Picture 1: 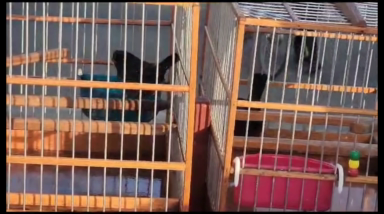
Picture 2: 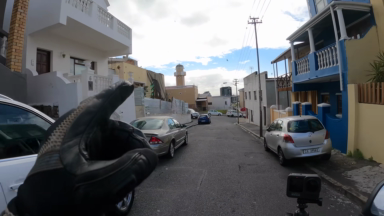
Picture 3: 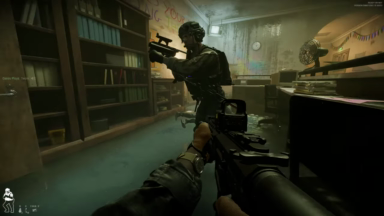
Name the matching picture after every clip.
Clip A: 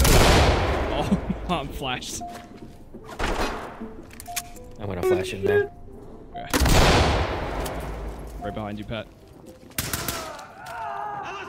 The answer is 3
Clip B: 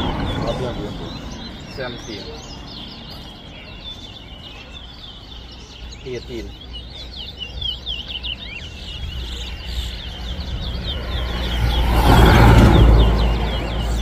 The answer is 1